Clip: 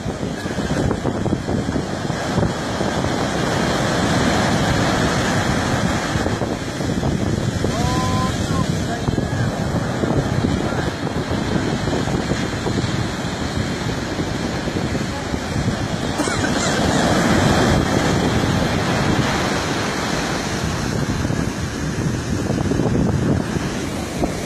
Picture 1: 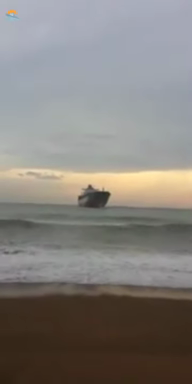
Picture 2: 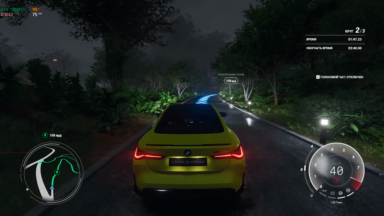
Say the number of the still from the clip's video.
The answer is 1